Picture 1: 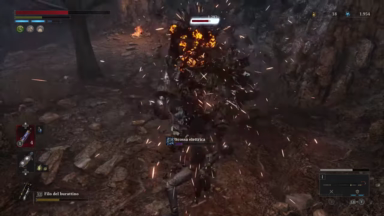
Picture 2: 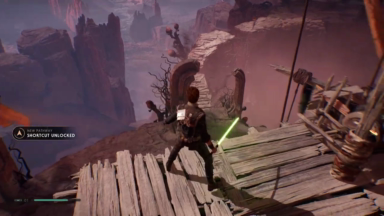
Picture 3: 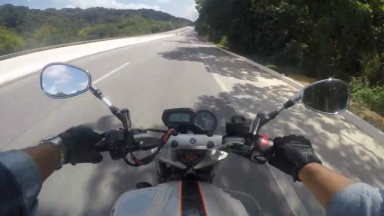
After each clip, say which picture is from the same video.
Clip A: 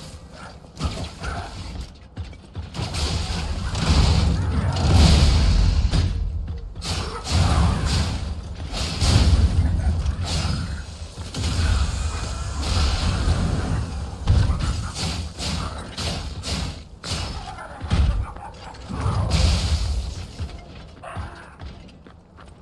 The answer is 1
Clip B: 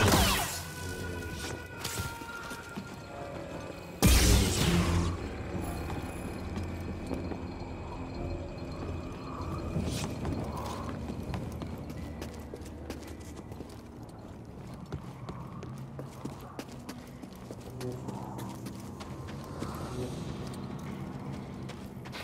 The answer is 2